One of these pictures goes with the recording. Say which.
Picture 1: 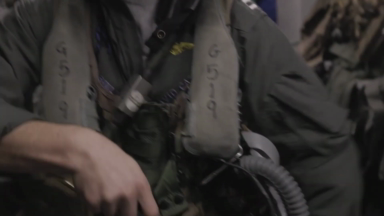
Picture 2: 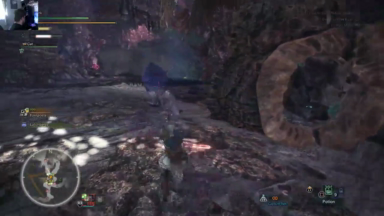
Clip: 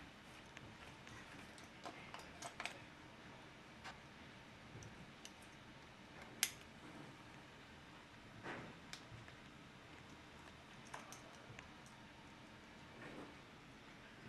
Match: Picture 1